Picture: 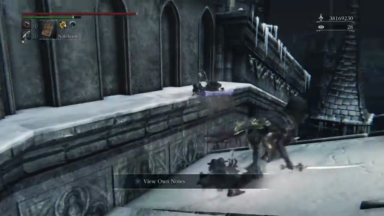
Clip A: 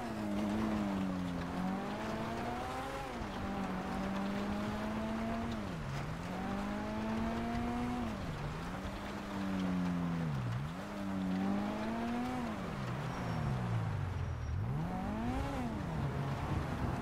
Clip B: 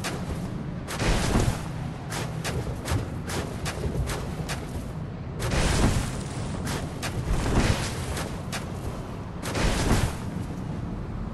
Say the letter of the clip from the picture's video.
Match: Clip B